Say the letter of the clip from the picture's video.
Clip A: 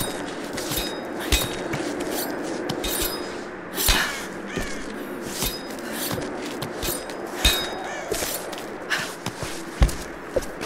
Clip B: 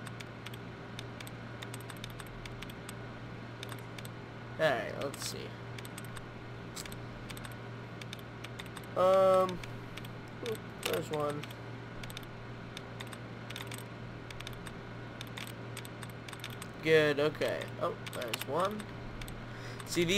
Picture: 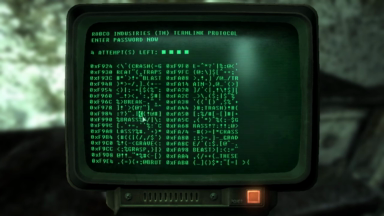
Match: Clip B